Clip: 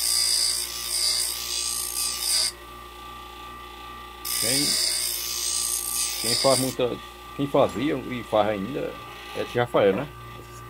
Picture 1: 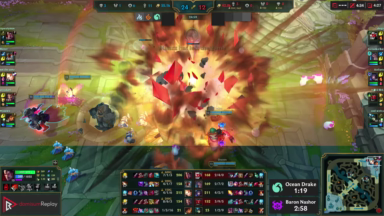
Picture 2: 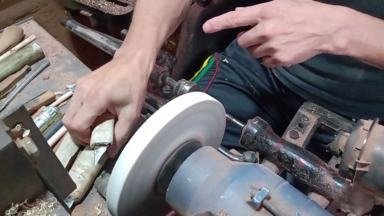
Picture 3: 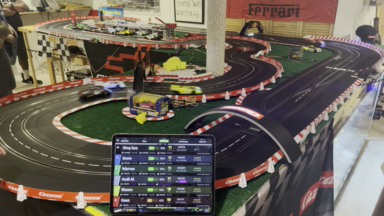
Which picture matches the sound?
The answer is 2